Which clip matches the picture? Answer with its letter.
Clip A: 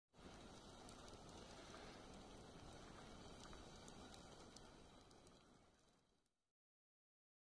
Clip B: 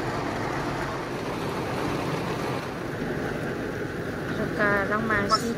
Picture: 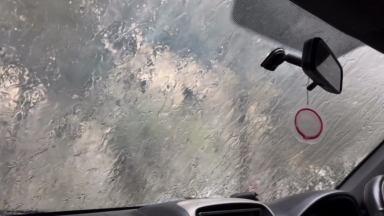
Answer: B